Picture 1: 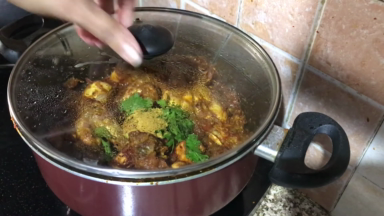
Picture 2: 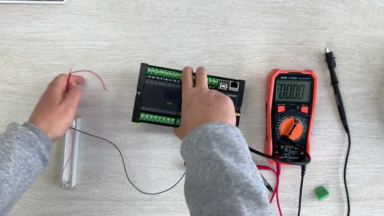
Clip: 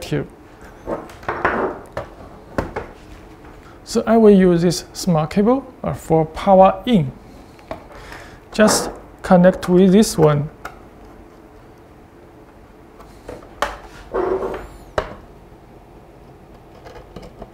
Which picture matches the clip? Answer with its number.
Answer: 2